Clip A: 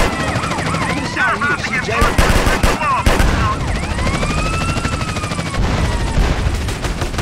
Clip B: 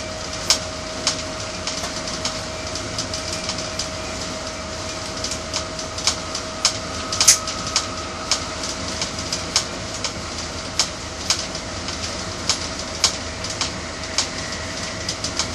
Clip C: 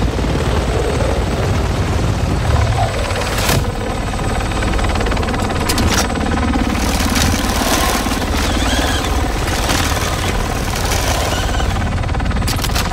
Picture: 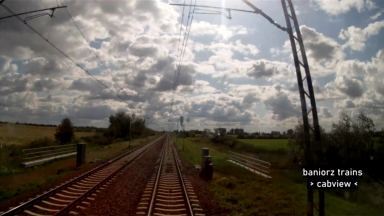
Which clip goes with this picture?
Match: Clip B